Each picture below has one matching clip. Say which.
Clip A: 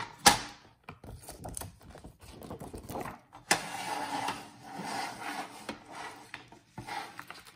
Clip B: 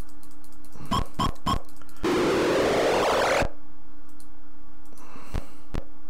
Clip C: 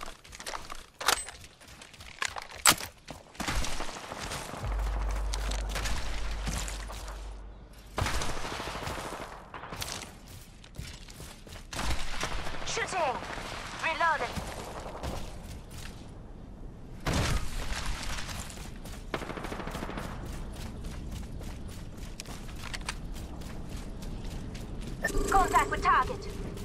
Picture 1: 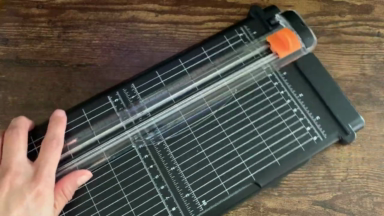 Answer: A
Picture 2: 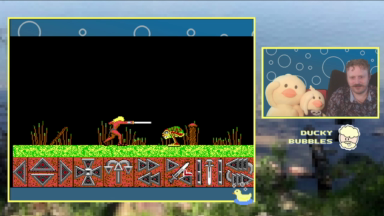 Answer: B